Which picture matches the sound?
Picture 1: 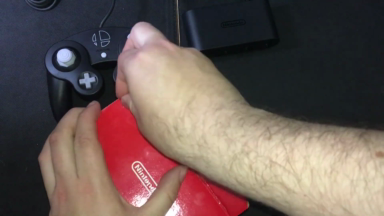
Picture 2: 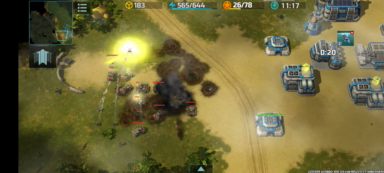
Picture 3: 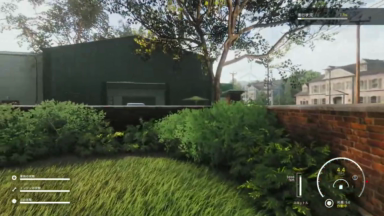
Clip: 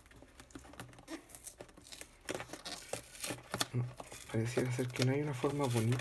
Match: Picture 1